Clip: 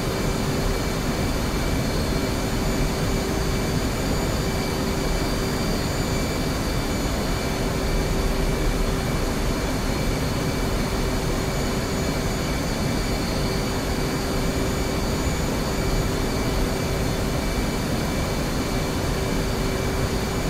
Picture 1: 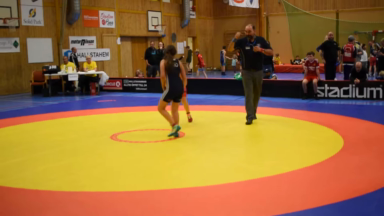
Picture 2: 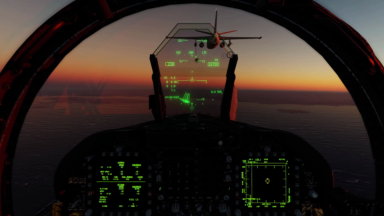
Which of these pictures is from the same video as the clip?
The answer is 2